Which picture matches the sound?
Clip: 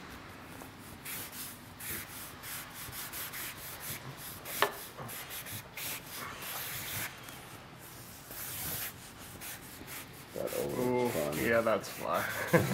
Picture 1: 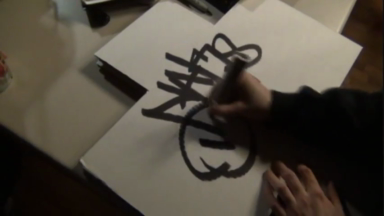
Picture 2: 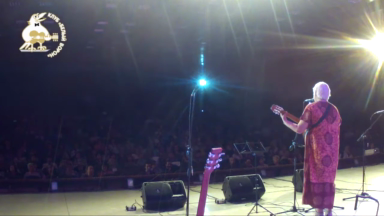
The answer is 1